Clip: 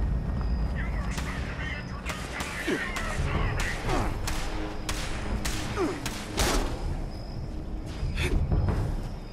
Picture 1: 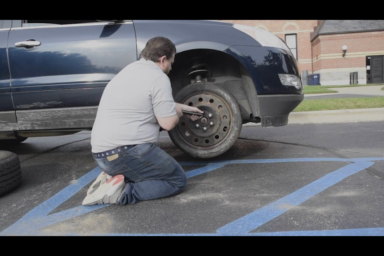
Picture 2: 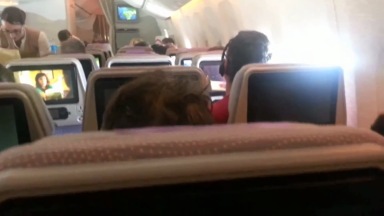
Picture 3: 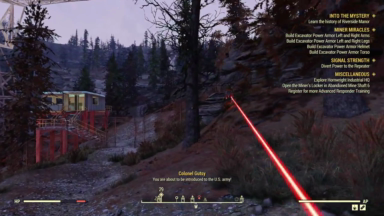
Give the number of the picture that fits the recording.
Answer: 3